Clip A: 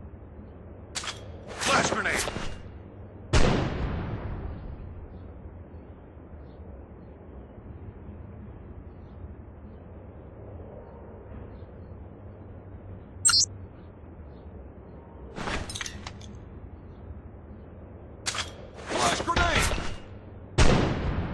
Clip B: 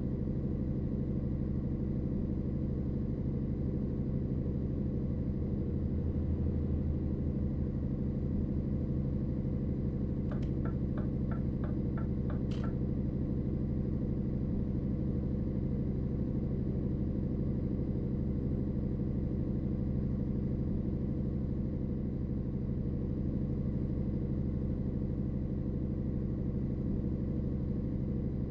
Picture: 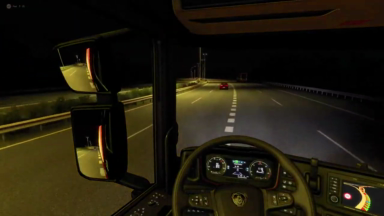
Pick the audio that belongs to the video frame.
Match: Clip B